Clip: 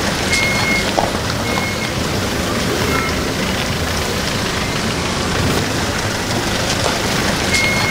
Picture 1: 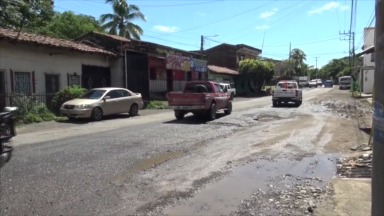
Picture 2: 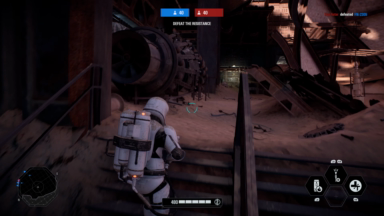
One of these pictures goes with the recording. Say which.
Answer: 1